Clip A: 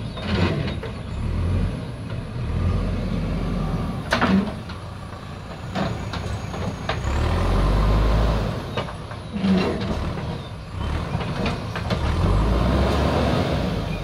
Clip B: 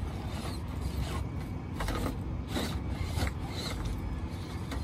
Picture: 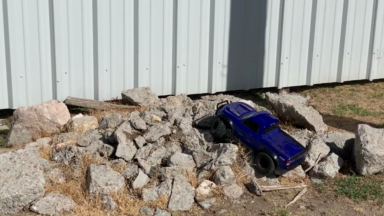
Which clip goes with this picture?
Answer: B